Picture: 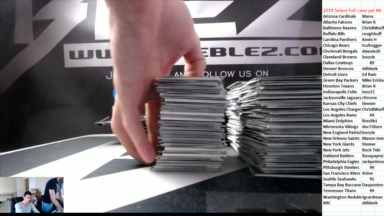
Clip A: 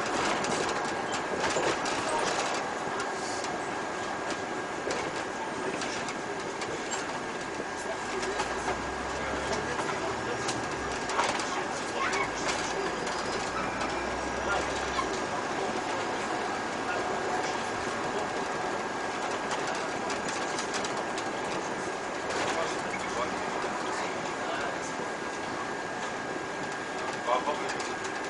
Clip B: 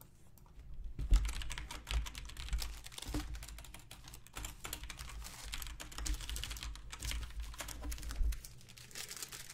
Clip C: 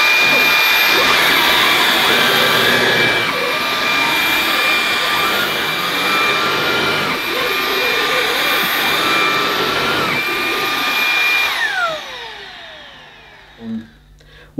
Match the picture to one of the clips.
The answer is B